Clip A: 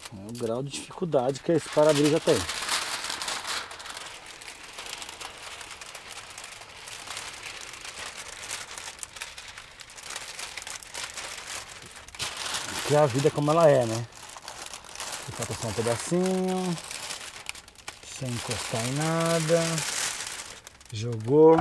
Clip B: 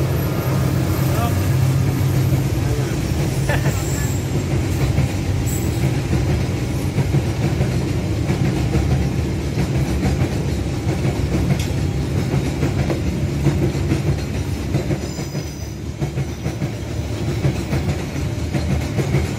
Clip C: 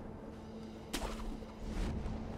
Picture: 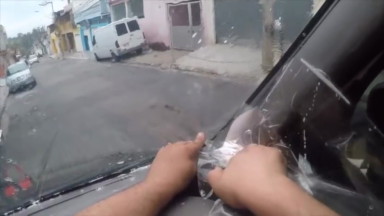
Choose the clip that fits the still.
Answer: A